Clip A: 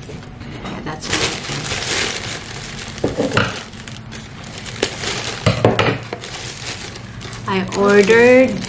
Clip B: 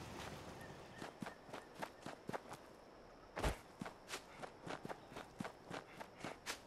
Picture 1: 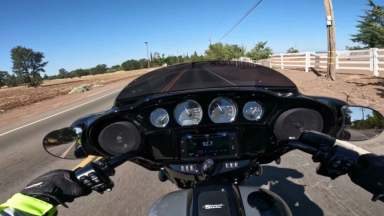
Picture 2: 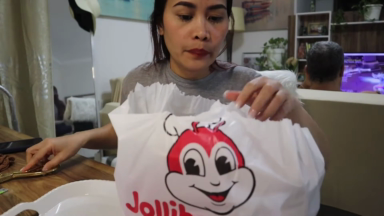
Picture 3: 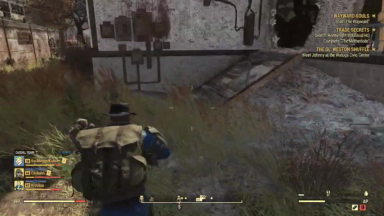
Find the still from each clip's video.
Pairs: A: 2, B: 3